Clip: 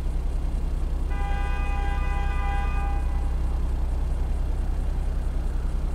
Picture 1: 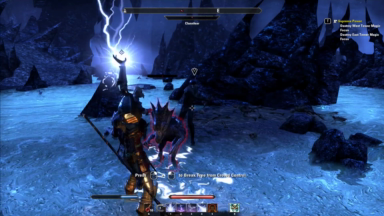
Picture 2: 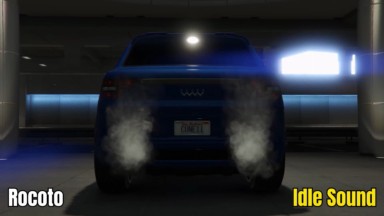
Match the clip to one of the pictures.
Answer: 2